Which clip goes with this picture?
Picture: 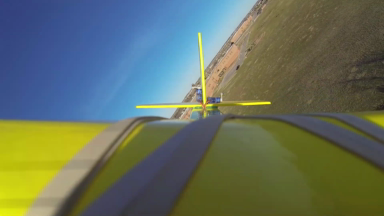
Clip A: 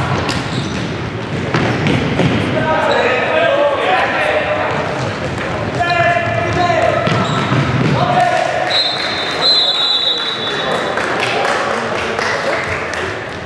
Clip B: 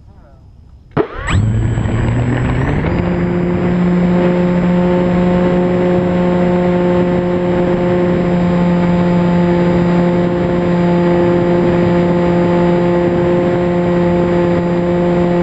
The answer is B